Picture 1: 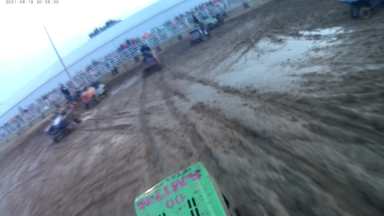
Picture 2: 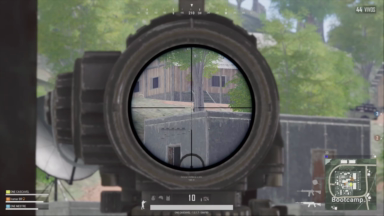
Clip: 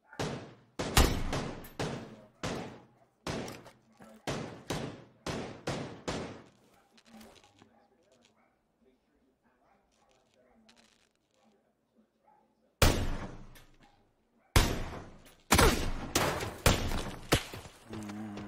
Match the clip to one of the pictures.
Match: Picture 2